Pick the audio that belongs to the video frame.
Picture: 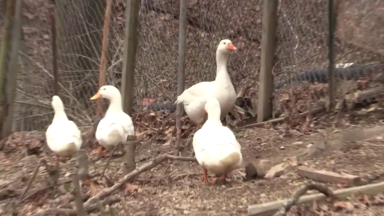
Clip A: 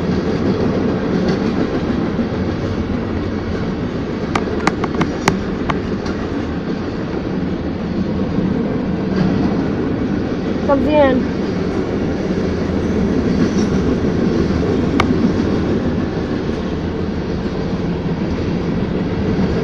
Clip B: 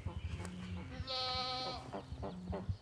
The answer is B